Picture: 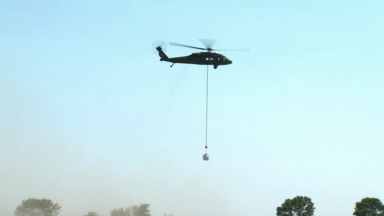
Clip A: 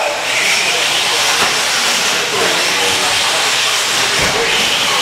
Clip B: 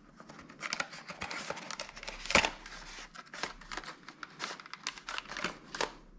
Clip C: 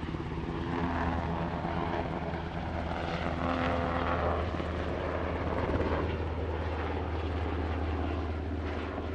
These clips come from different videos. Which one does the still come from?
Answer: C